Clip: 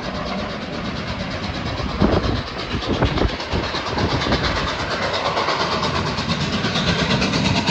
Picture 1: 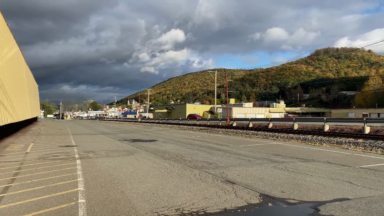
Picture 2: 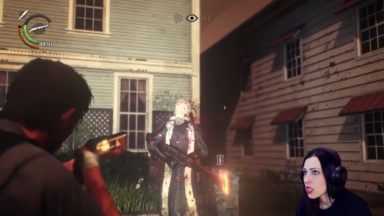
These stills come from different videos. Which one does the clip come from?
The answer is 1